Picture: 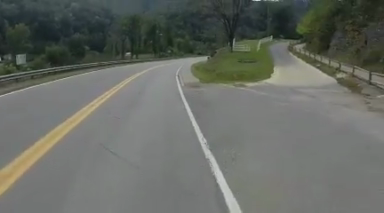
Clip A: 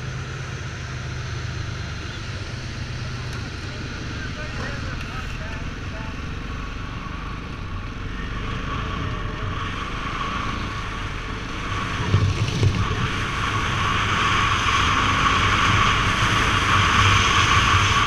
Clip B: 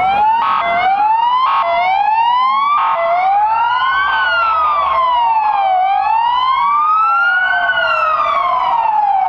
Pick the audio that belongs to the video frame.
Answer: A